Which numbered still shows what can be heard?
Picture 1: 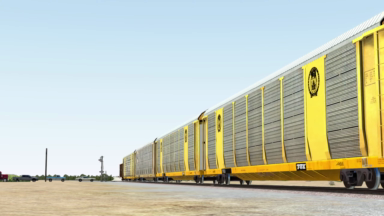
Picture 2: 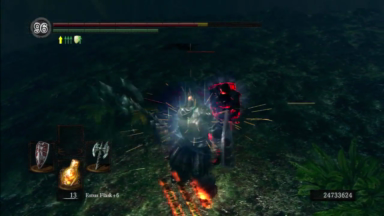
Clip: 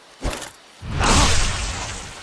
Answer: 2